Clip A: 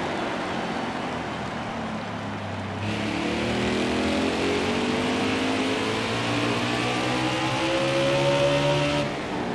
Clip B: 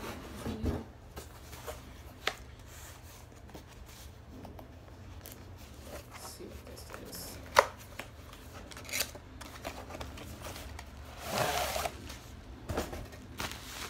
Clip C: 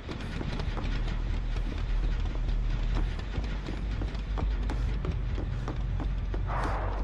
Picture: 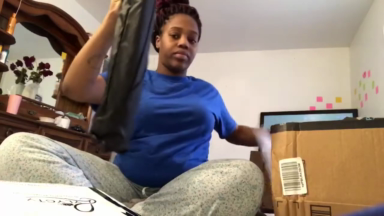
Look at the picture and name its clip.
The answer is B